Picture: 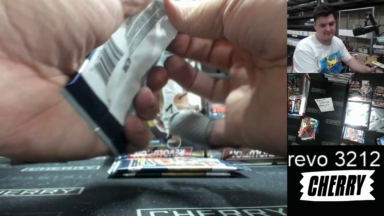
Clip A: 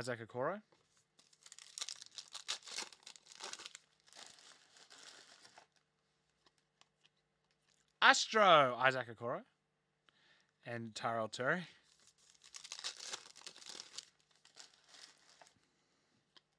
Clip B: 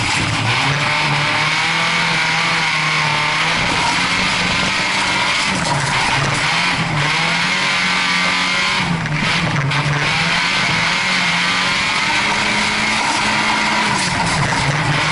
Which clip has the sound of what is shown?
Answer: A